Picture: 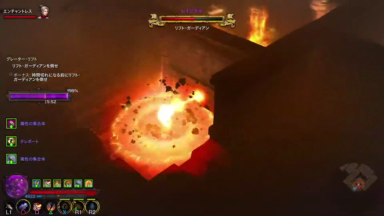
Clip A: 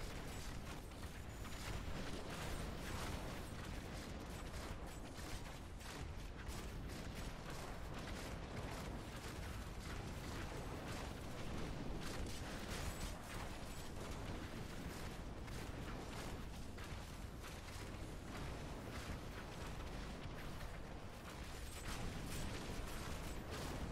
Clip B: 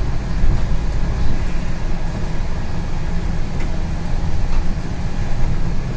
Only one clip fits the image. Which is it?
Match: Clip A